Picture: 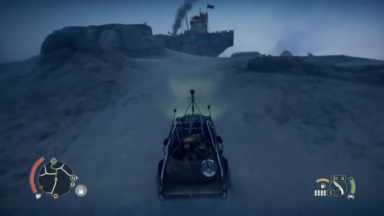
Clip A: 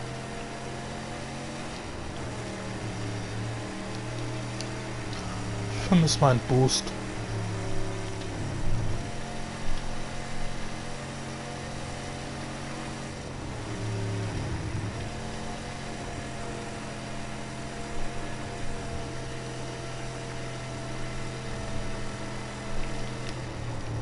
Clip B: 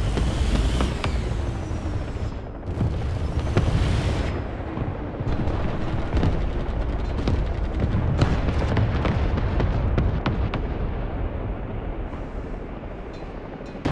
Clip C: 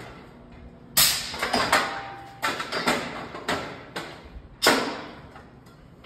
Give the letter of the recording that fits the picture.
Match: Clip A